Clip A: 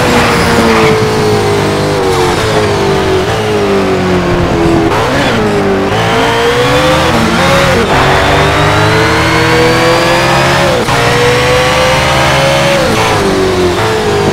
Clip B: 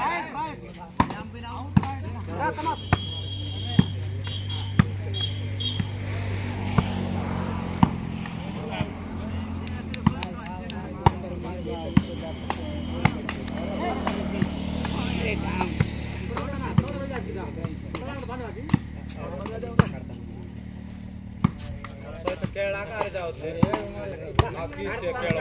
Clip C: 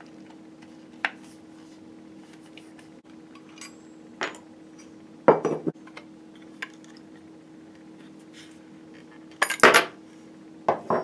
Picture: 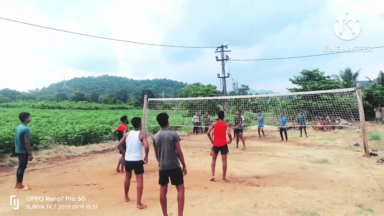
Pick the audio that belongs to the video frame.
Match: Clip B